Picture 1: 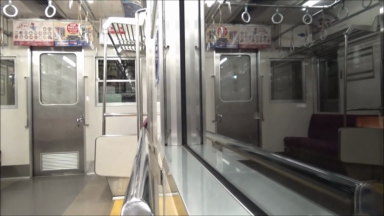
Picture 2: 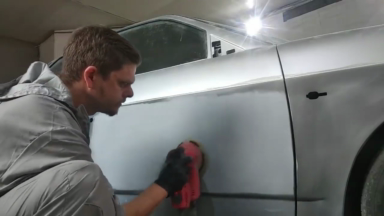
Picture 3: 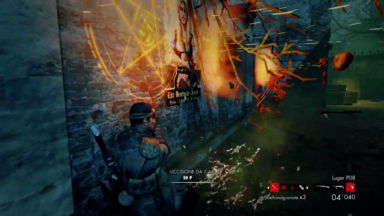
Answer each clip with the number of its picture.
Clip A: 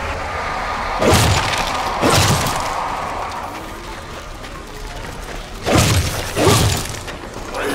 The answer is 3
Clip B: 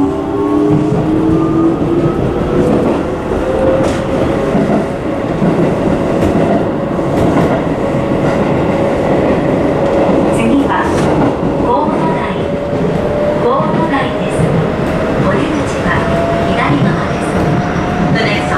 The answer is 1